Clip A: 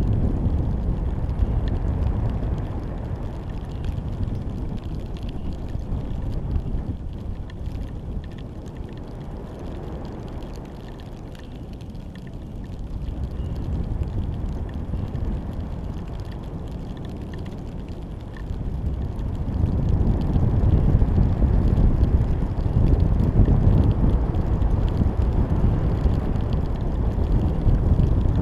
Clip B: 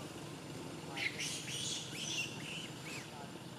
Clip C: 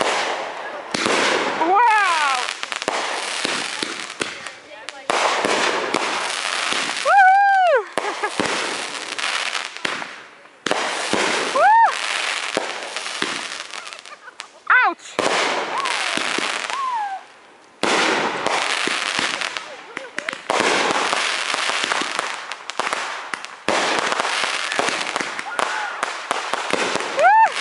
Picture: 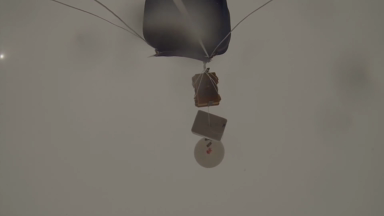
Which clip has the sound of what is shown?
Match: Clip A